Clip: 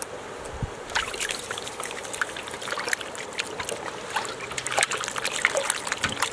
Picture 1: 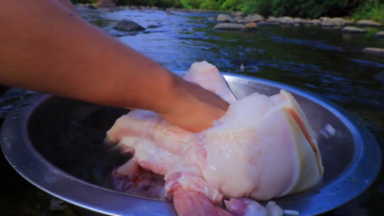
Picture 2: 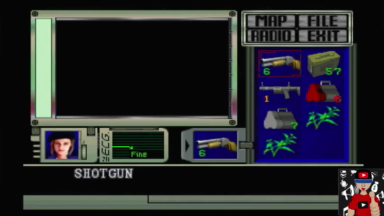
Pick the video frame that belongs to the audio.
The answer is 1